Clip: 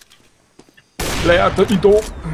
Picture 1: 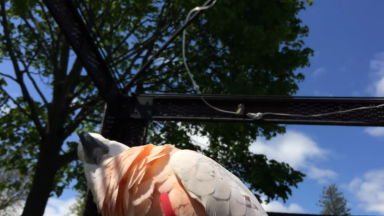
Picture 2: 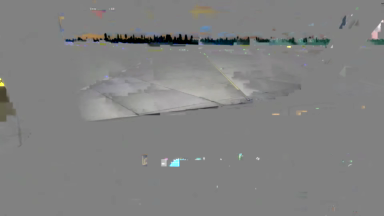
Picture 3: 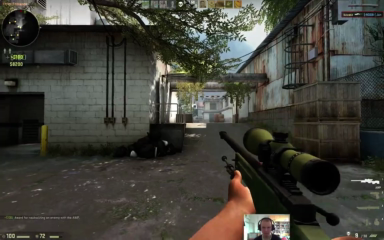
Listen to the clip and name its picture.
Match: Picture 3